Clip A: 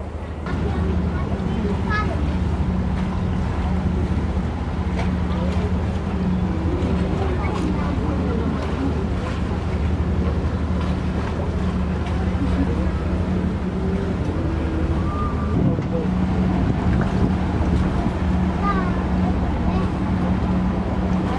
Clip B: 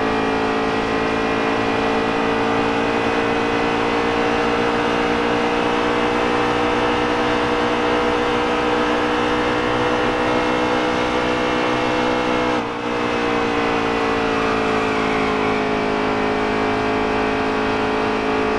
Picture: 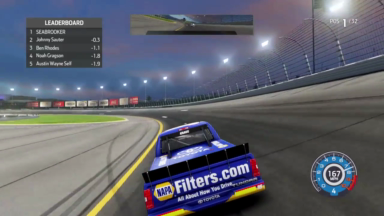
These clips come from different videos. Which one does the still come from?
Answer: B